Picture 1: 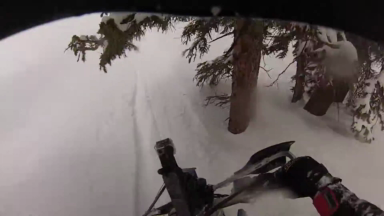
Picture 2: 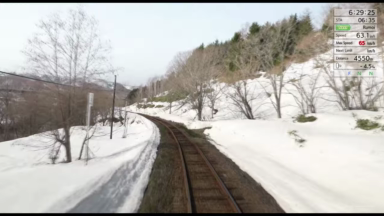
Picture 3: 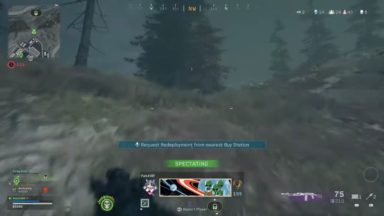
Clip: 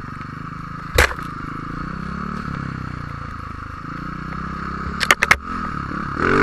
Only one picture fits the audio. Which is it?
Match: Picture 1